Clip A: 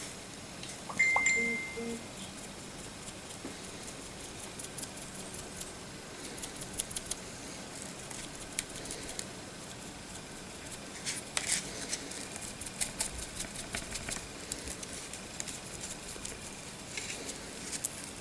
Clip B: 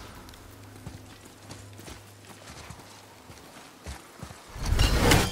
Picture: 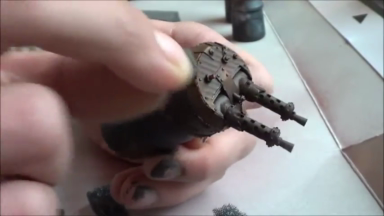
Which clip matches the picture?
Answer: A